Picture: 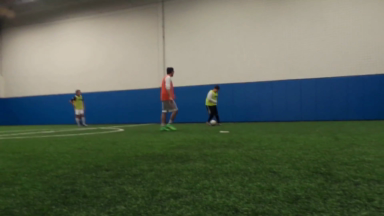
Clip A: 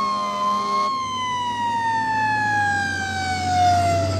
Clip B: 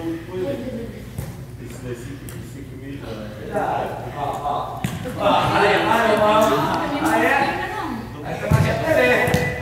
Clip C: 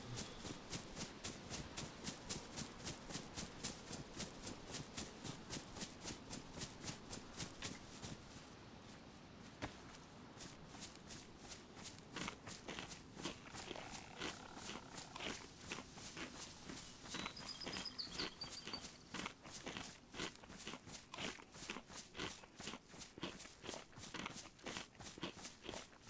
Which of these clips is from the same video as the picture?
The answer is B